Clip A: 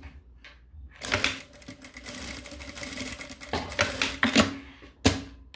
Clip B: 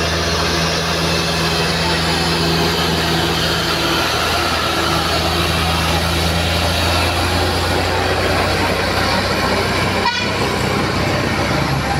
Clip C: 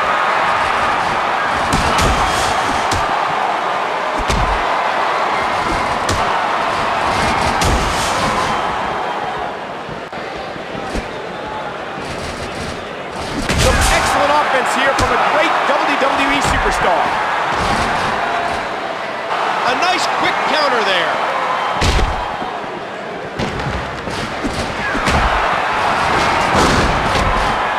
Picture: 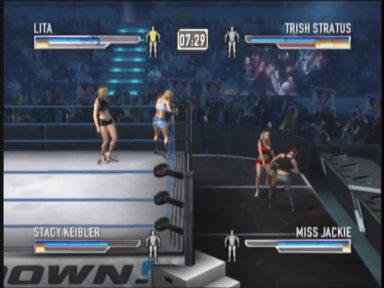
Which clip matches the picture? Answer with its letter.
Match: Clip C